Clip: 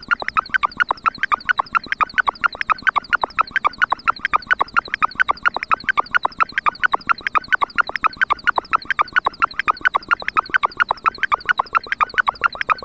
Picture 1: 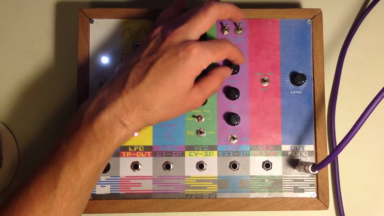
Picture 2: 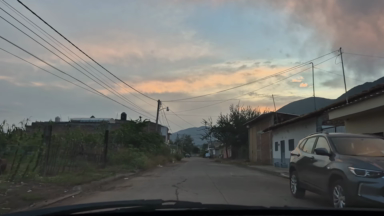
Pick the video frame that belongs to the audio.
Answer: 1